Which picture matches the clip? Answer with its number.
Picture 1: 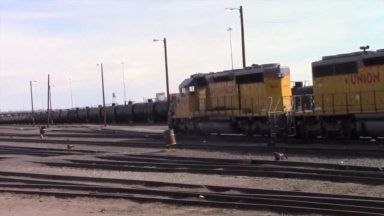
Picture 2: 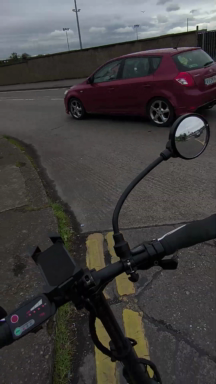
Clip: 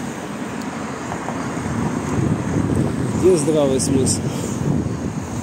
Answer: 2